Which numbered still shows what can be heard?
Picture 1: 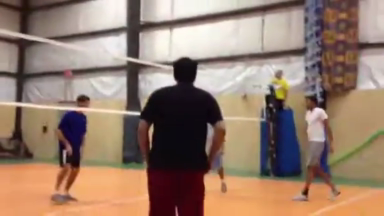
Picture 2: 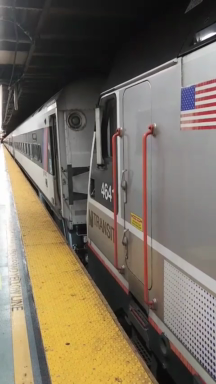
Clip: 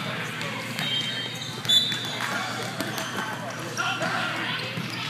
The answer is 1